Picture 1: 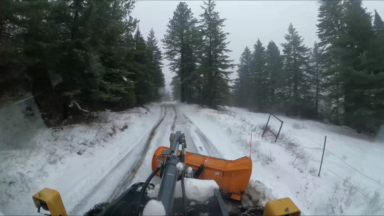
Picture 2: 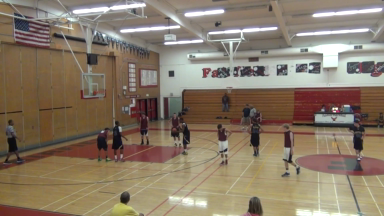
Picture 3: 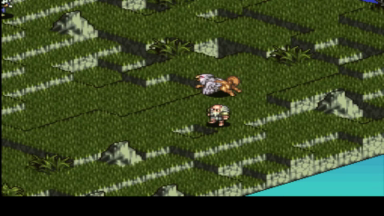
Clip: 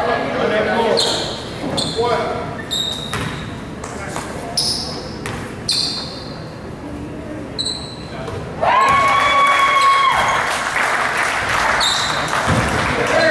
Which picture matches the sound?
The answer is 2